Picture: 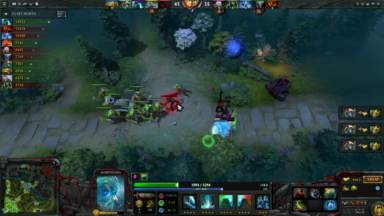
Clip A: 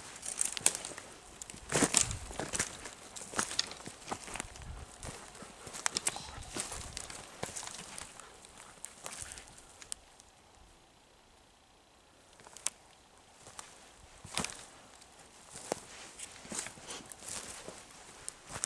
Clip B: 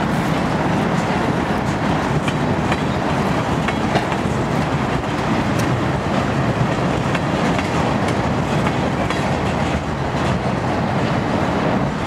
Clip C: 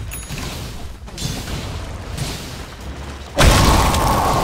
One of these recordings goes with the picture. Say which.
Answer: C